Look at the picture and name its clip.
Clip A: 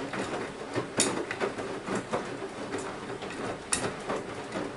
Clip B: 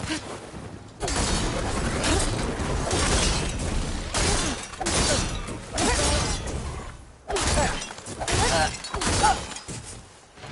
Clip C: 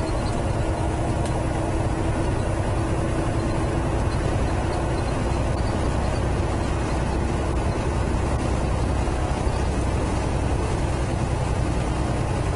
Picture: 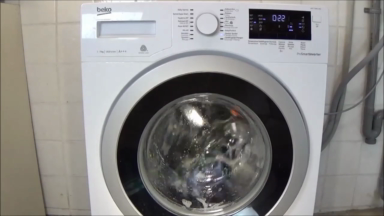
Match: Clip A